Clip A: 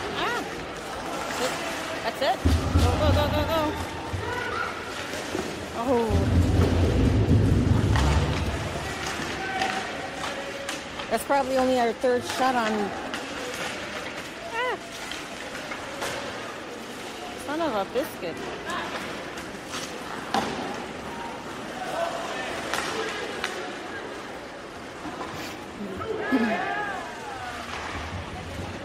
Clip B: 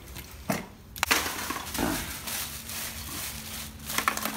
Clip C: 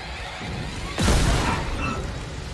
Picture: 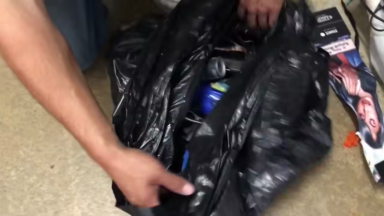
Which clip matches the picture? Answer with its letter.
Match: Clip B